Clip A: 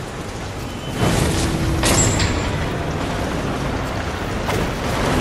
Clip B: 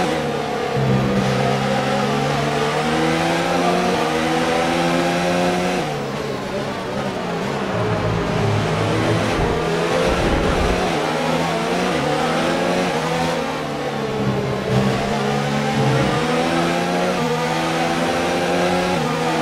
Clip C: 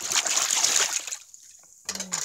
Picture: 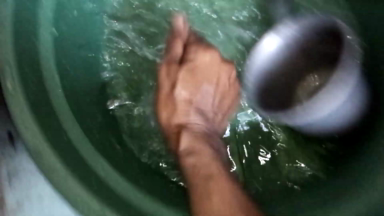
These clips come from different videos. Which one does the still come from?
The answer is C